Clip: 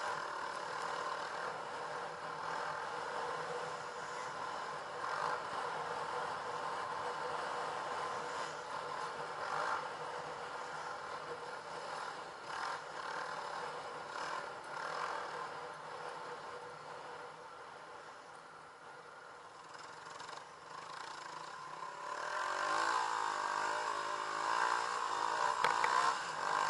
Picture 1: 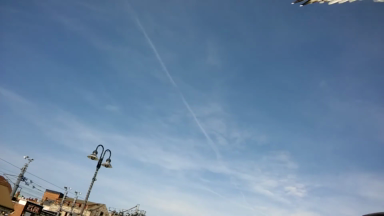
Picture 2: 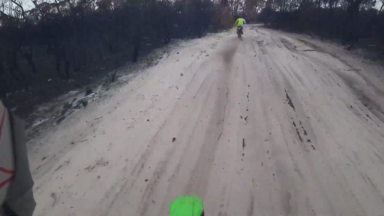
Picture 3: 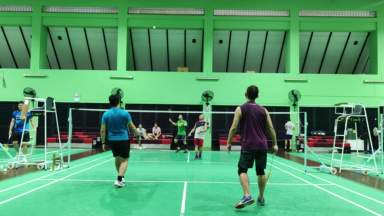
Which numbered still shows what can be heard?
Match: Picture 2